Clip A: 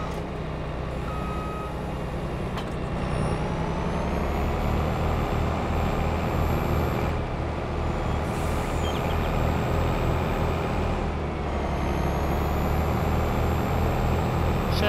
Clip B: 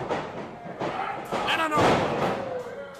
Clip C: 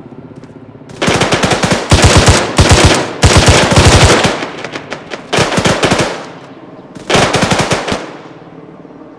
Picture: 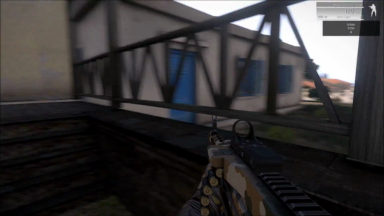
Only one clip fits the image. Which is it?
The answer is C